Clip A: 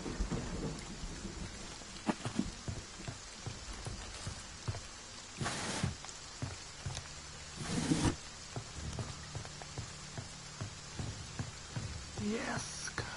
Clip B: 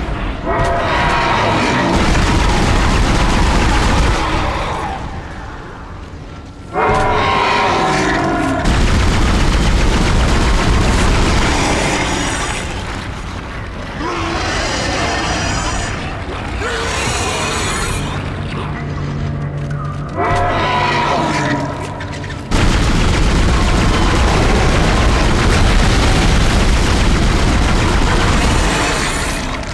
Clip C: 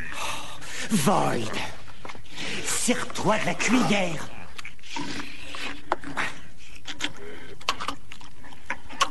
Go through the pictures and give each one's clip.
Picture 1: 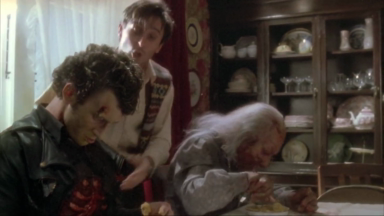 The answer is C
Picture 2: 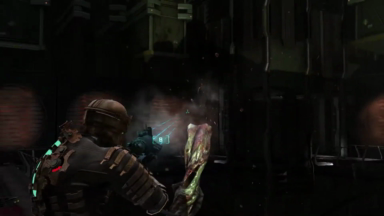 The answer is B